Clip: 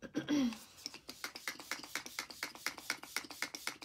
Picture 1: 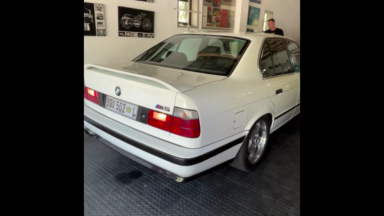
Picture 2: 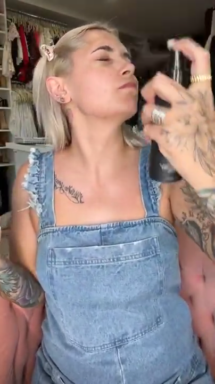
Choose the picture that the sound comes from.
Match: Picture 2